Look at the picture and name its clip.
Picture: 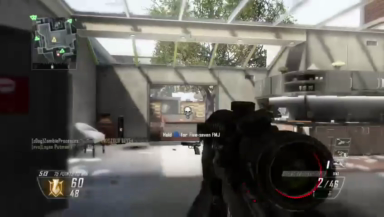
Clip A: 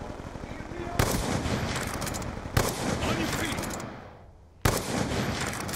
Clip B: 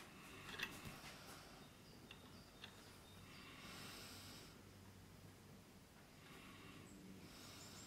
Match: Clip A